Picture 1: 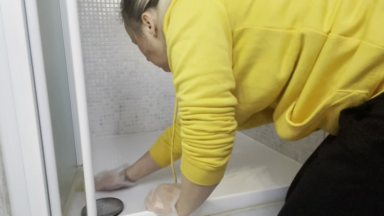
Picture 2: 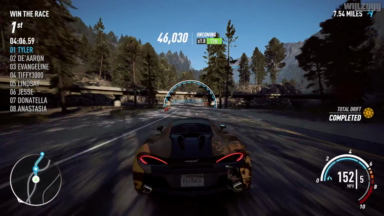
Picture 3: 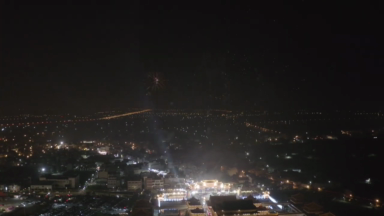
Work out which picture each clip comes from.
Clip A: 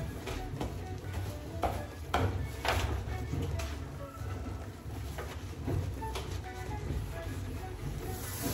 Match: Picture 1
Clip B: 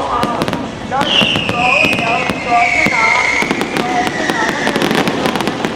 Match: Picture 3